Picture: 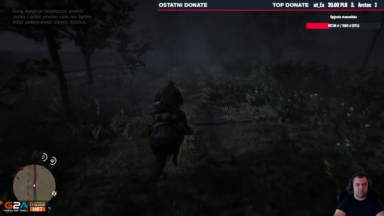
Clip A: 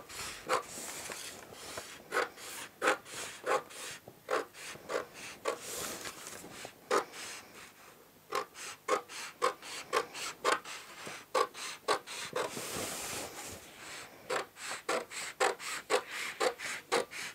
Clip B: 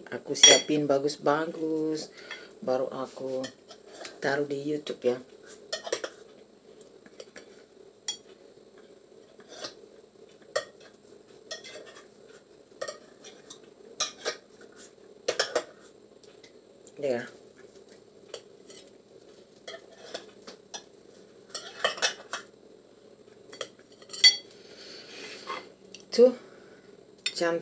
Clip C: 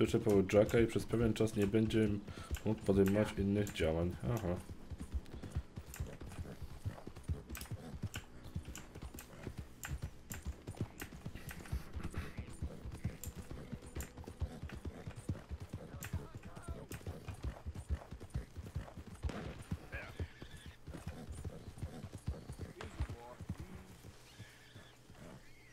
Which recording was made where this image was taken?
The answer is C